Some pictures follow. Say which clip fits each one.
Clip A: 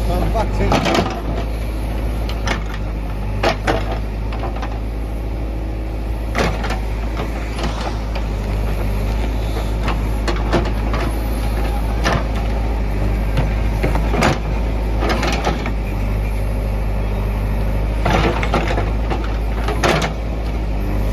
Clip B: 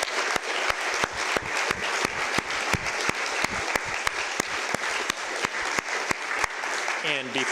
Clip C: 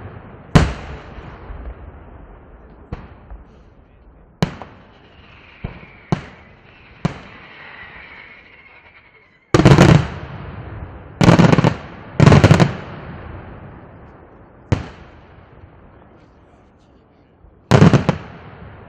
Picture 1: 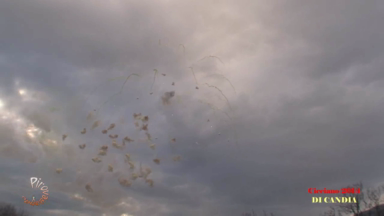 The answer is C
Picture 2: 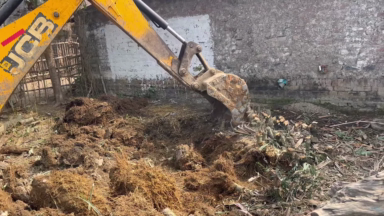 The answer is A